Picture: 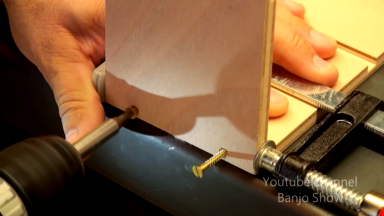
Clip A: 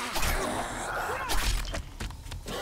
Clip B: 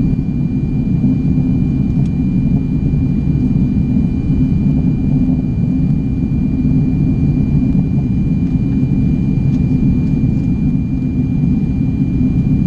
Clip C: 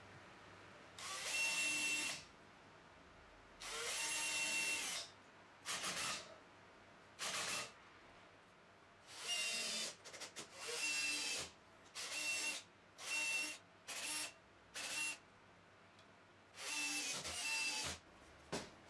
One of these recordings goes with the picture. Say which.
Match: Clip C